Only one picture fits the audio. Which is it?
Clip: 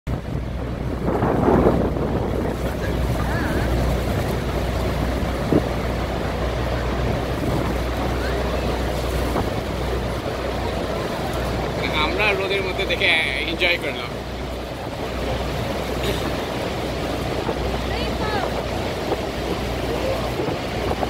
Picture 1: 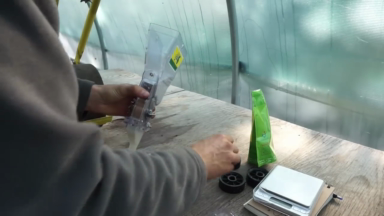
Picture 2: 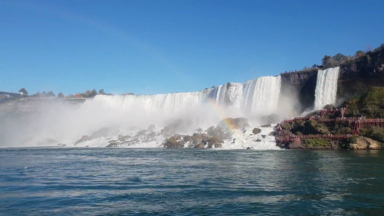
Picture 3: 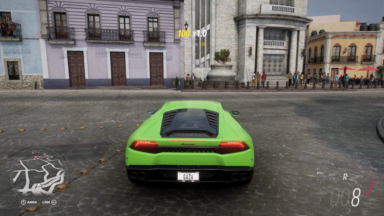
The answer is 2